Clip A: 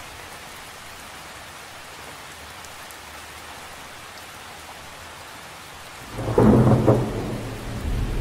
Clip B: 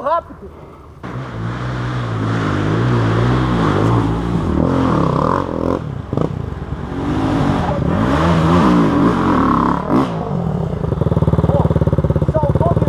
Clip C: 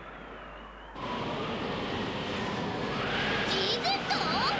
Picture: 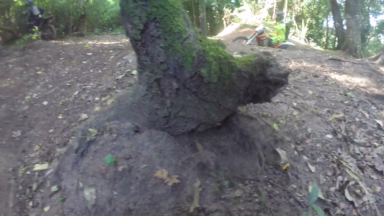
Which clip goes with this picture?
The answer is B